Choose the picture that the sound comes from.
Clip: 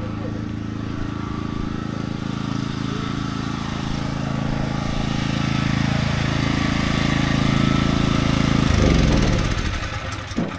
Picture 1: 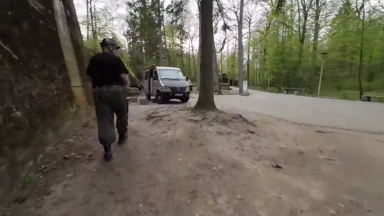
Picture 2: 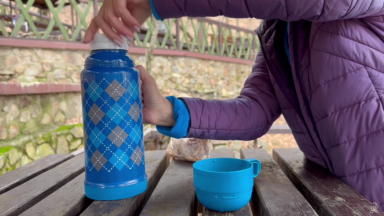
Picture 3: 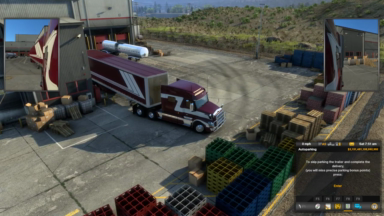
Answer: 1